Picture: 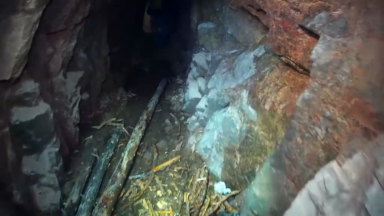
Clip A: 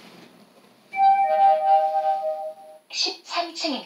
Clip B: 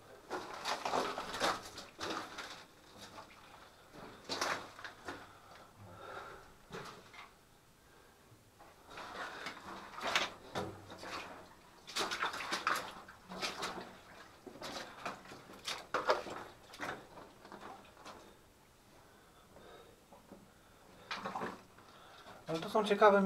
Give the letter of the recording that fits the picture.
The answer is B